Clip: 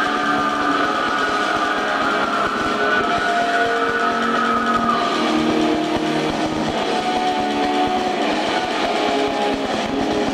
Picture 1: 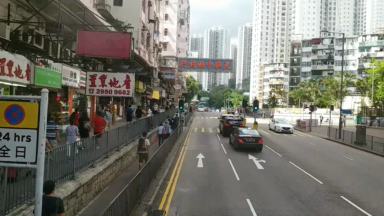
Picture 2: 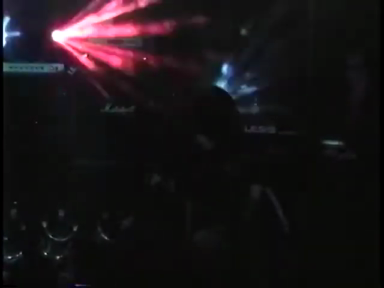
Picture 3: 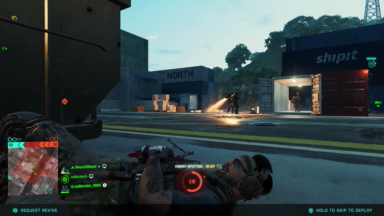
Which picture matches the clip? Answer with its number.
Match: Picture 2